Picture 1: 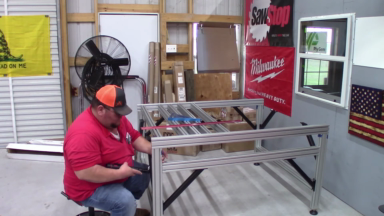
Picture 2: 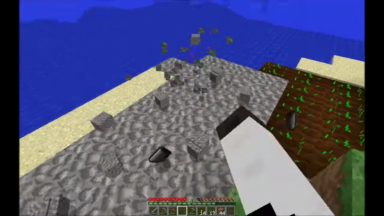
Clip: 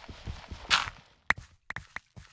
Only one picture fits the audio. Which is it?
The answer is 2